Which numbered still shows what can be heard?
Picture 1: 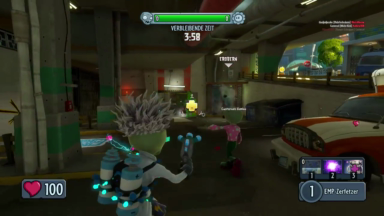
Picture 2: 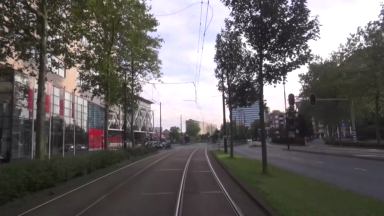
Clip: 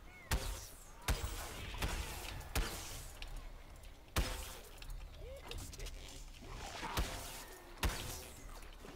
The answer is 1